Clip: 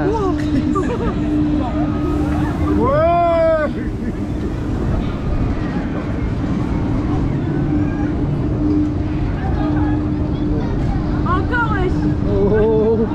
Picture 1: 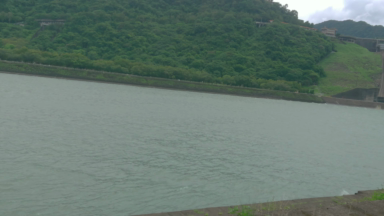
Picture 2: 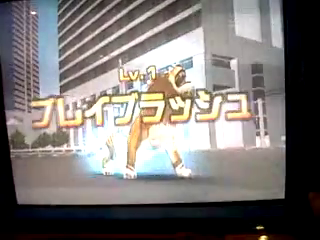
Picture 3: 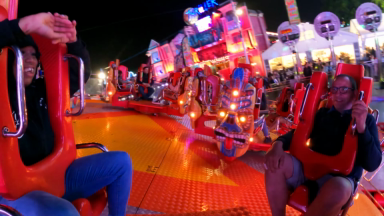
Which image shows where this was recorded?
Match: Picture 3